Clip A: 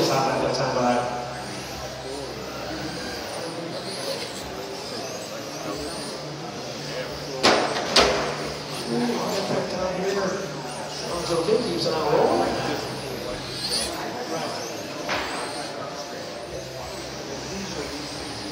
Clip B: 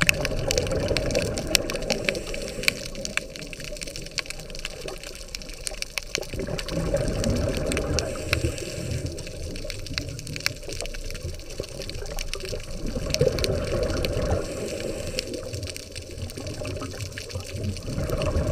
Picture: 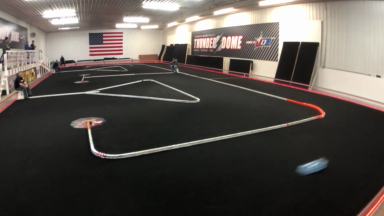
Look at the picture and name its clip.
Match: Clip A